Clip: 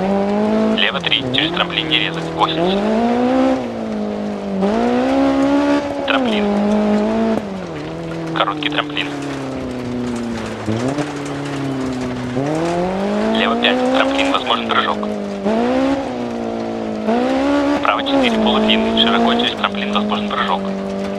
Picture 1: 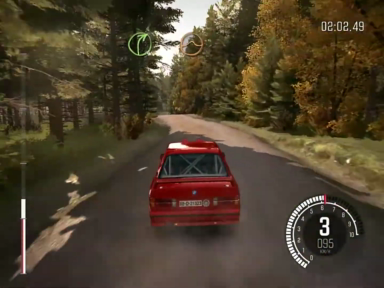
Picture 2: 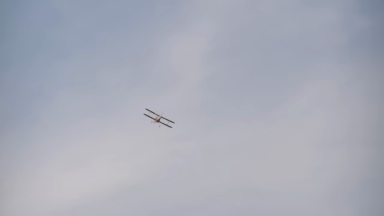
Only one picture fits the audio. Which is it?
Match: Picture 1